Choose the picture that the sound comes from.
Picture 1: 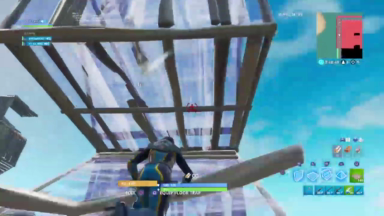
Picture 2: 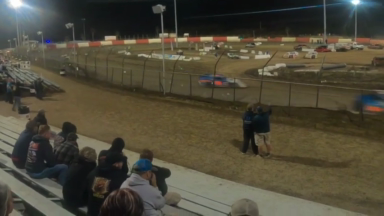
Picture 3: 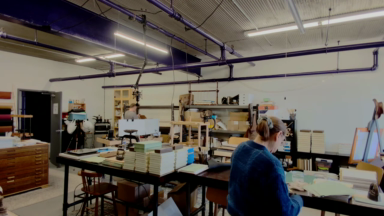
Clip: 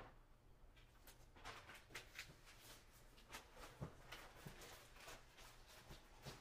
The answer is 3